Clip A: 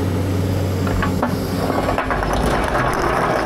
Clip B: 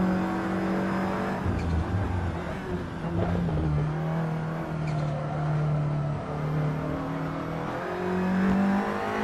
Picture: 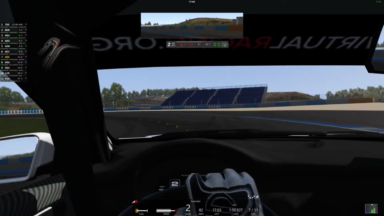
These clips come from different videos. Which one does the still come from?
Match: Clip B